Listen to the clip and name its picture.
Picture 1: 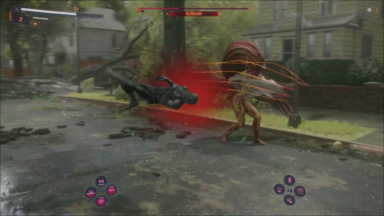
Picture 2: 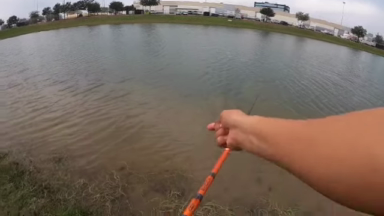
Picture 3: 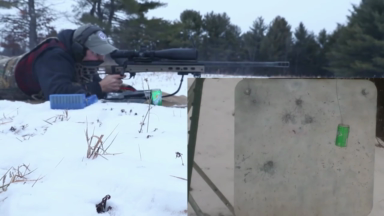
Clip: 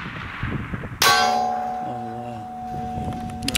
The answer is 3